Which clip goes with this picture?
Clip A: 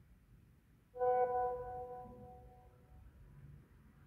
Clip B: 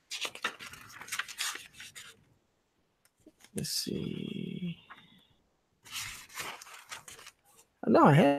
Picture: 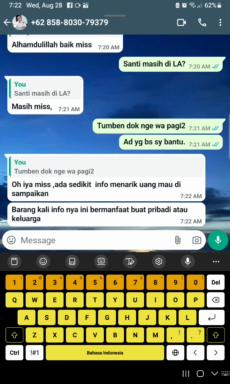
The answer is A